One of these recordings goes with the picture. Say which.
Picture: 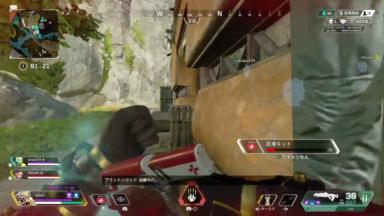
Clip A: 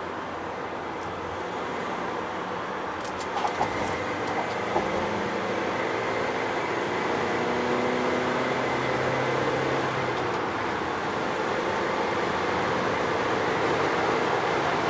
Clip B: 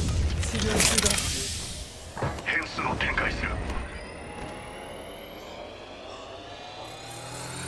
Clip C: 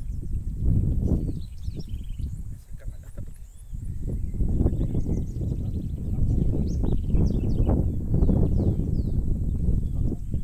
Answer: B